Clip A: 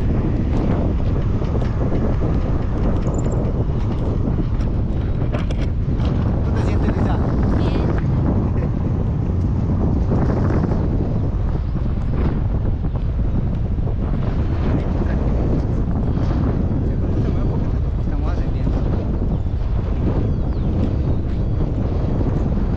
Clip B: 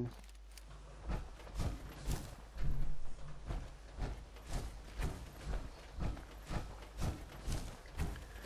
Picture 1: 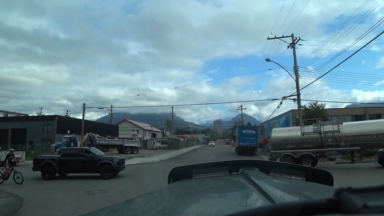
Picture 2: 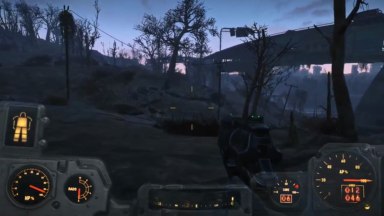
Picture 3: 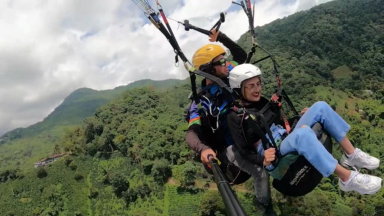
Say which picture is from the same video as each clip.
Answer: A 3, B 2